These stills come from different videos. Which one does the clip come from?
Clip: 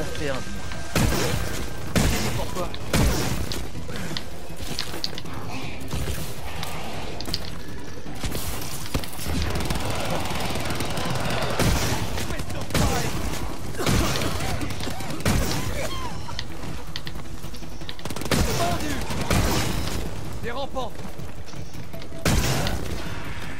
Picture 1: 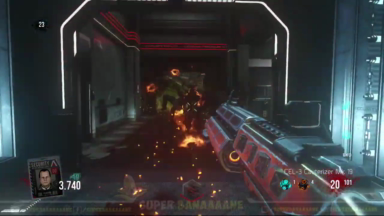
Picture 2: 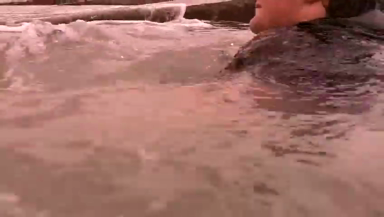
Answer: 1